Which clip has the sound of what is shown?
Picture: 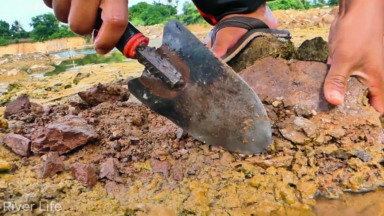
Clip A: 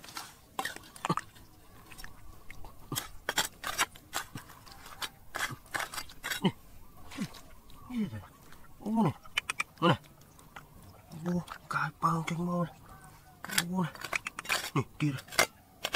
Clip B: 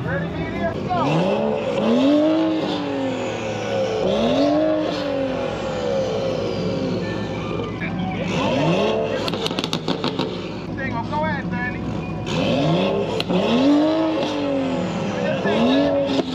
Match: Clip A